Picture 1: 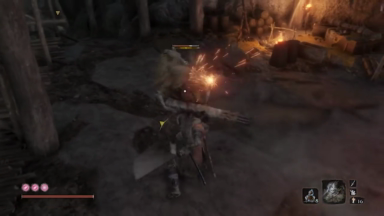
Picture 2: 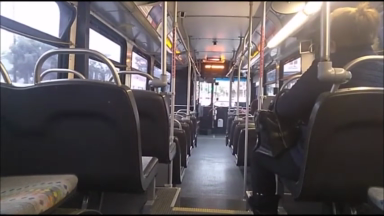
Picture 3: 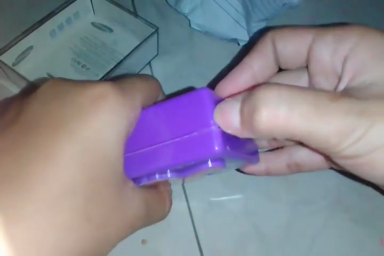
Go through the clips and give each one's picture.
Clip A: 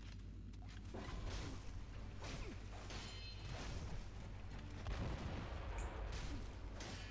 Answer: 1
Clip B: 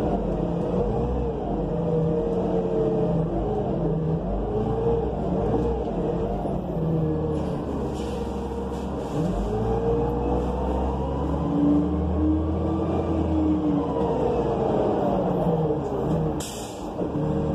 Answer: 2